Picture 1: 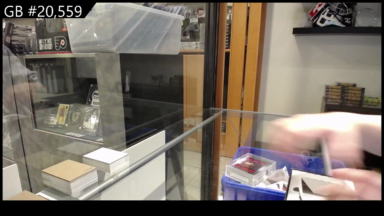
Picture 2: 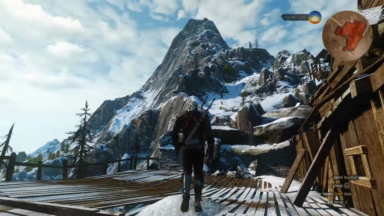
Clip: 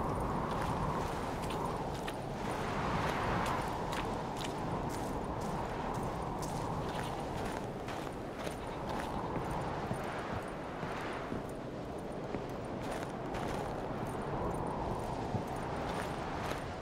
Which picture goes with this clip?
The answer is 2